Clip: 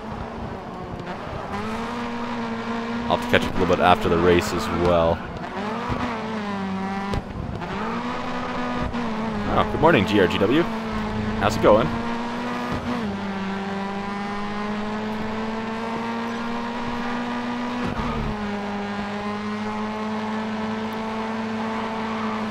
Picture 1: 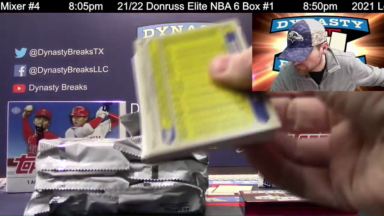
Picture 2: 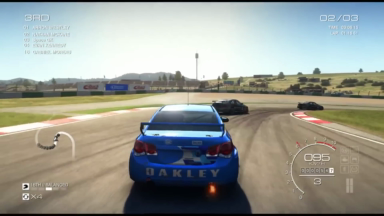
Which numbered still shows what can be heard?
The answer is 2